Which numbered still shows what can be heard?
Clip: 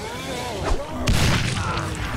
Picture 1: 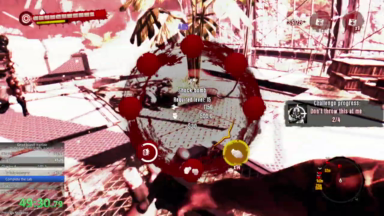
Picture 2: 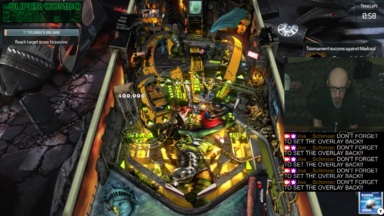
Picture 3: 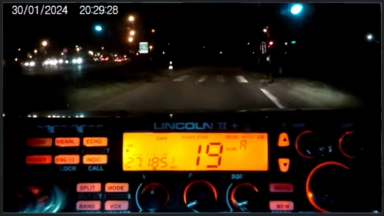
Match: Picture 1